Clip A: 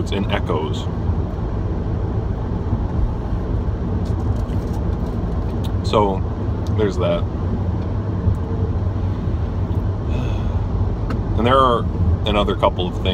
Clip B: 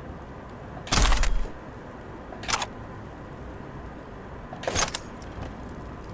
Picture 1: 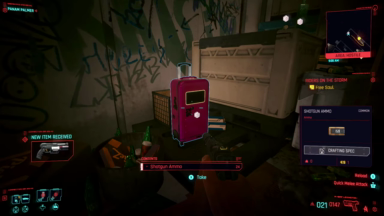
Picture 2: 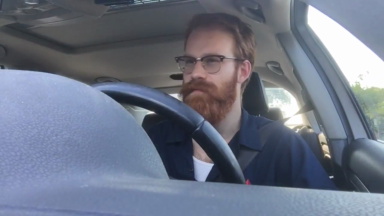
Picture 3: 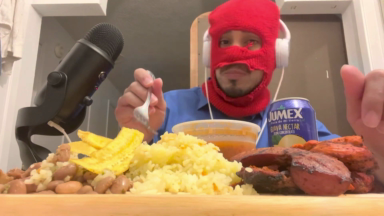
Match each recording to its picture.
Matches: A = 2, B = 1